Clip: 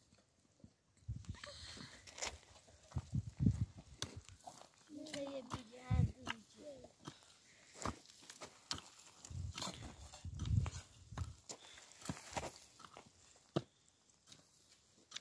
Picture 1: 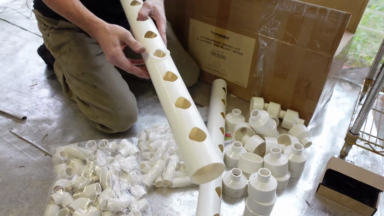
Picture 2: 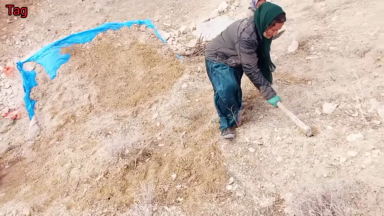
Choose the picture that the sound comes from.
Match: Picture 2